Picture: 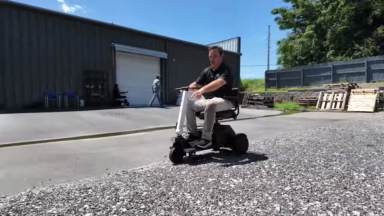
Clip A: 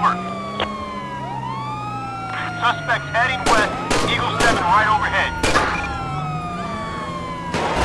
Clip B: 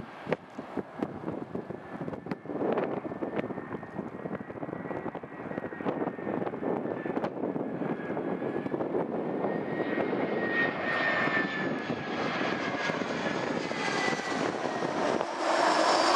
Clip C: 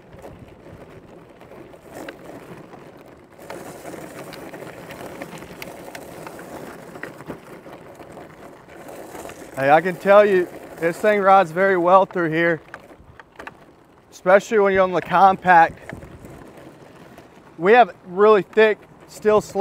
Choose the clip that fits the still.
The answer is C